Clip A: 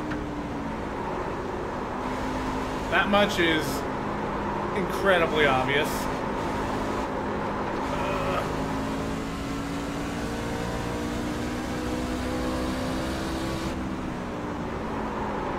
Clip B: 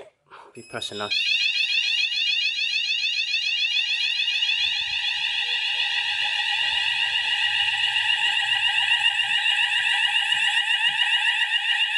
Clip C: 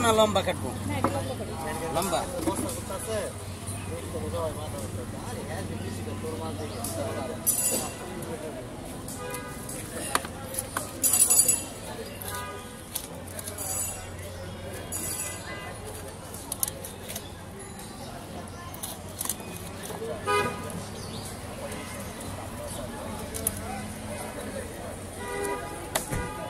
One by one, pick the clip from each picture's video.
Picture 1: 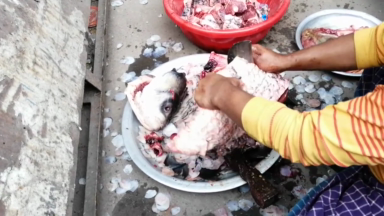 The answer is C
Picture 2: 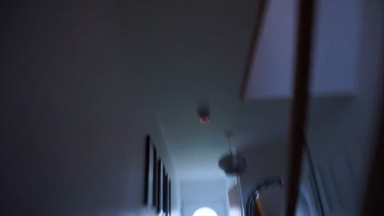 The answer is B